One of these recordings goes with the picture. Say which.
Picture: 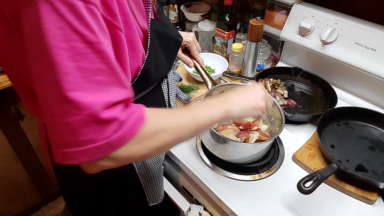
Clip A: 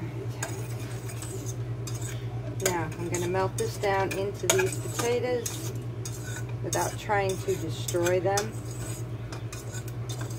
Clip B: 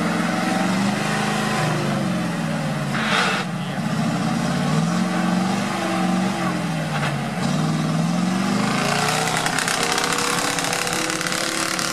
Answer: A